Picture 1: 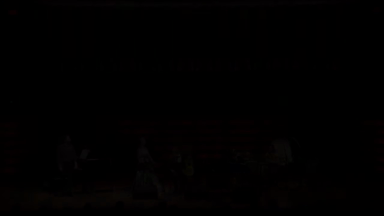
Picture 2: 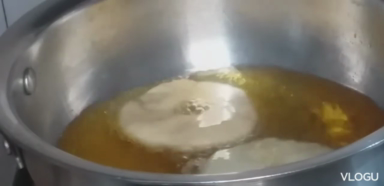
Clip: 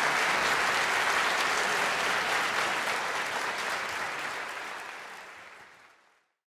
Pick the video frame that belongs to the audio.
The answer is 1